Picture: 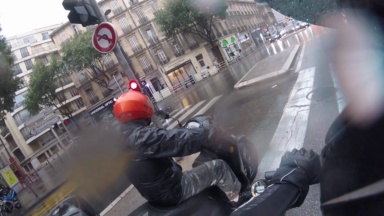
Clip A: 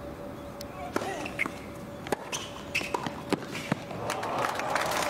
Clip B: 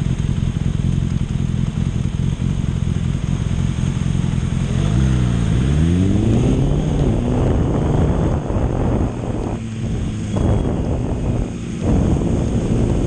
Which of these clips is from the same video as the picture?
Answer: B